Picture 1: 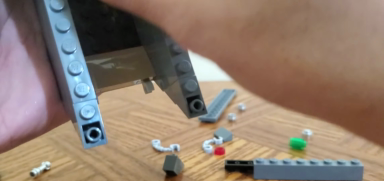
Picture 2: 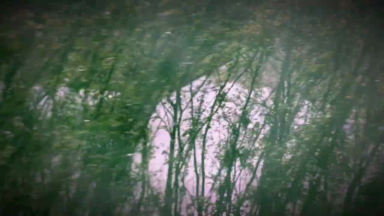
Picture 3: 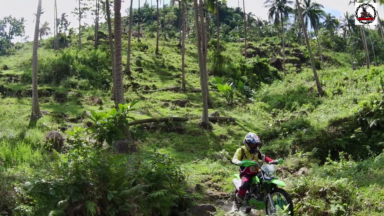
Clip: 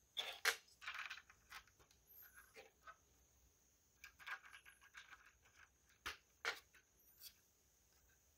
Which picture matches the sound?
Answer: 1